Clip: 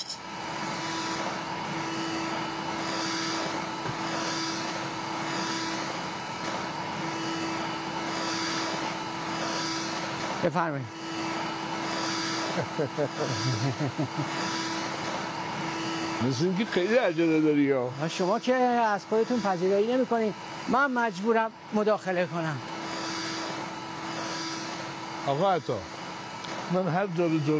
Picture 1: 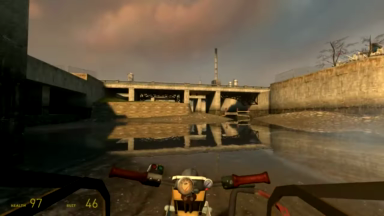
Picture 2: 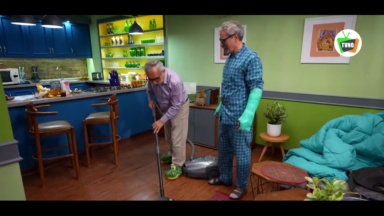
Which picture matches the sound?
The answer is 2